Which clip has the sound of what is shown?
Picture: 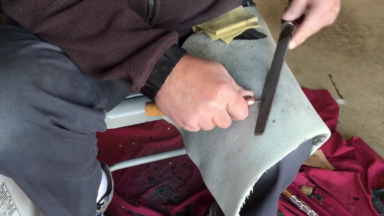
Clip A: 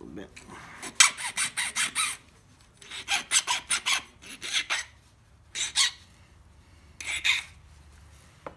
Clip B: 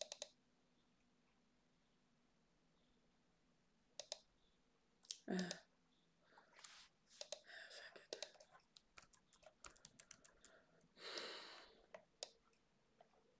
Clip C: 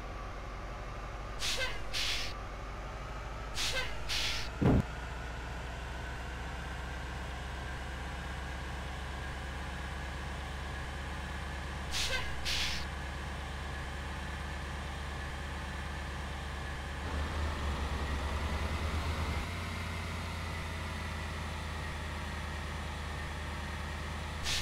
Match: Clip A